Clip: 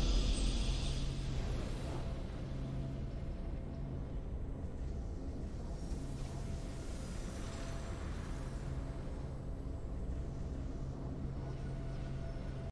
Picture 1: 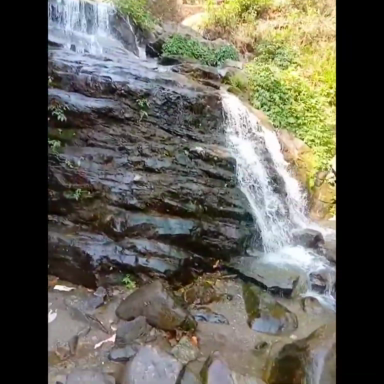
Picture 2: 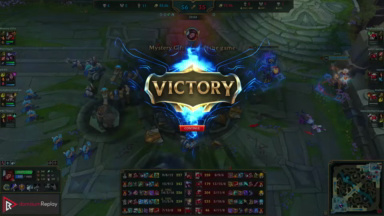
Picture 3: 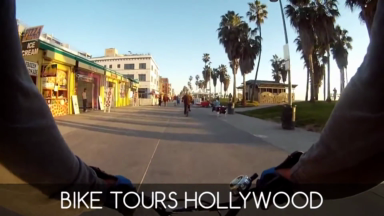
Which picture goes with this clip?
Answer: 2